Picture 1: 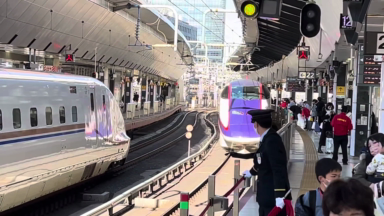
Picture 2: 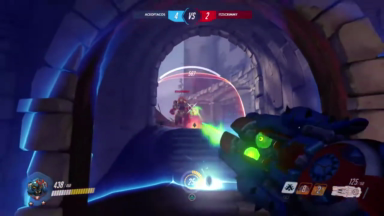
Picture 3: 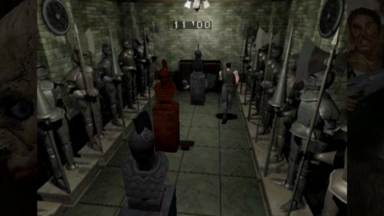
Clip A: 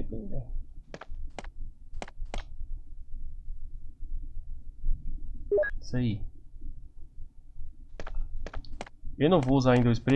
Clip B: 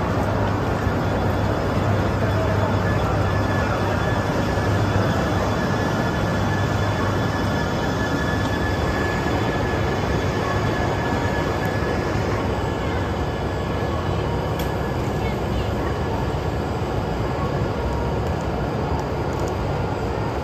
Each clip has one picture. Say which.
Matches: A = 3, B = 1